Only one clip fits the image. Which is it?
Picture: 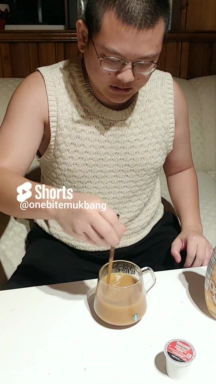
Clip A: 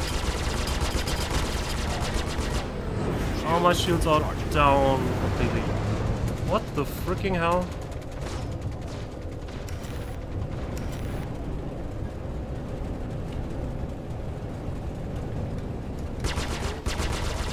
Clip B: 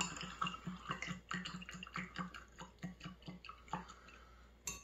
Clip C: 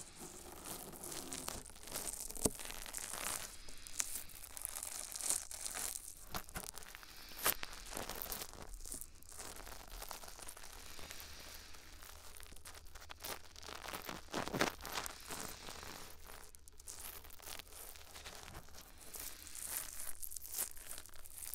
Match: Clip B